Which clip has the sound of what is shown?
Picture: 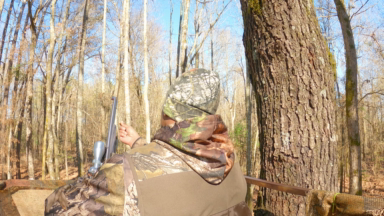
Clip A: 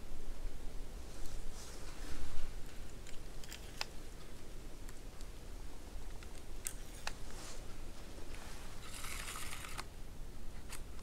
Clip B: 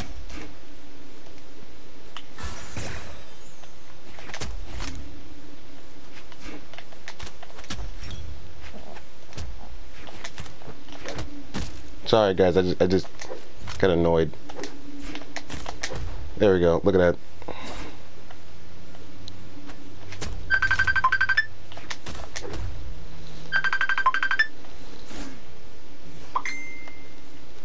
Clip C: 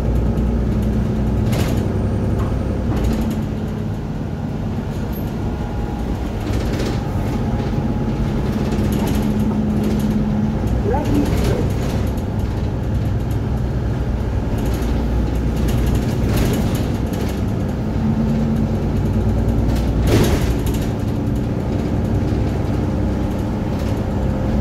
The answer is A